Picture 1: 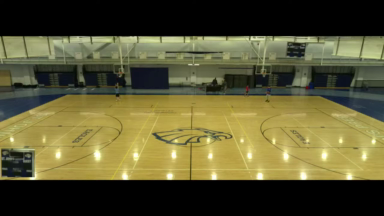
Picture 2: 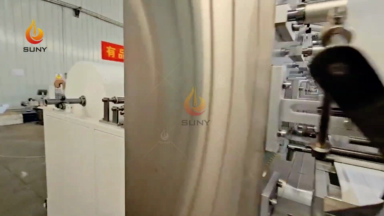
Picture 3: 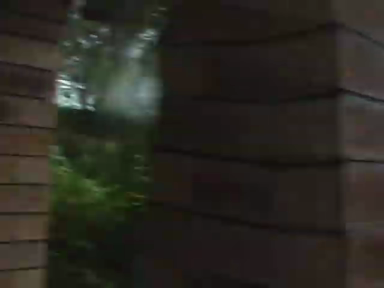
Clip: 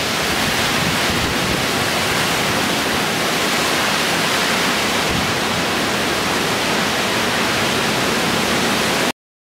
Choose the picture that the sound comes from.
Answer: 3